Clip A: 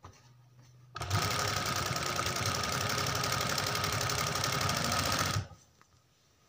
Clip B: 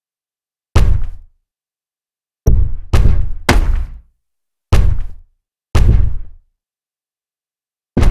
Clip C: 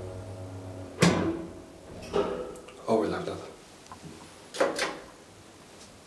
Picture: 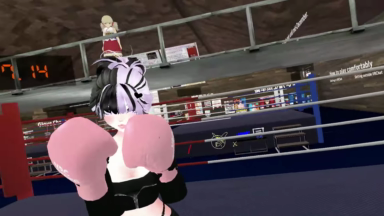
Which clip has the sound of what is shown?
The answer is B